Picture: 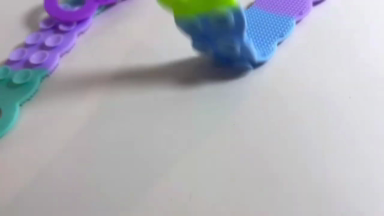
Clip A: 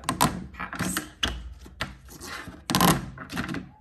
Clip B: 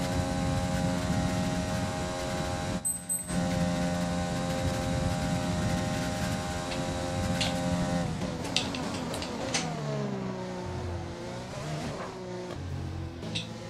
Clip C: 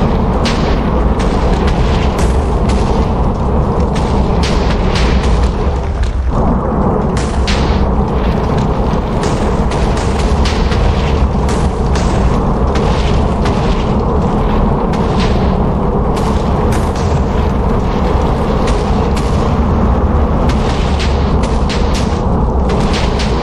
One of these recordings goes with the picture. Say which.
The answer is A